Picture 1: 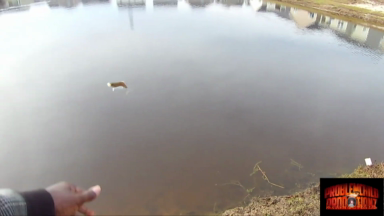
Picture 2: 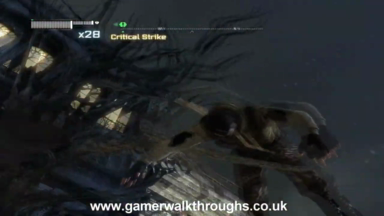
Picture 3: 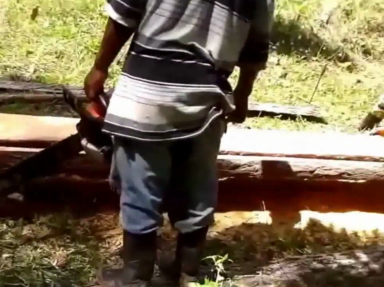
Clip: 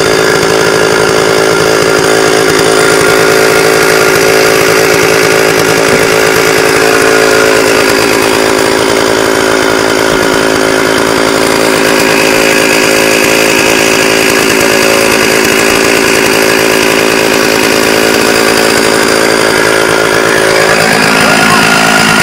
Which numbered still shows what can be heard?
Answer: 3